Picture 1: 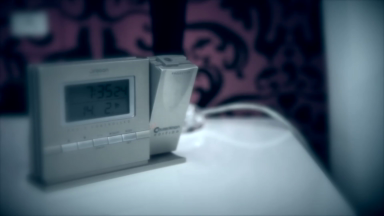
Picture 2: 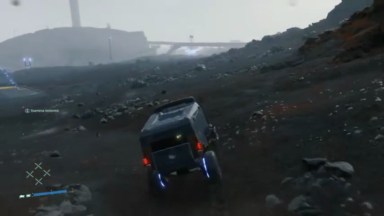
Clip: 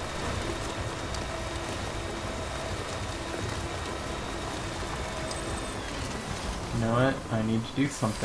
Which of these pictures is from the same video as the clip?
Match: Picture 2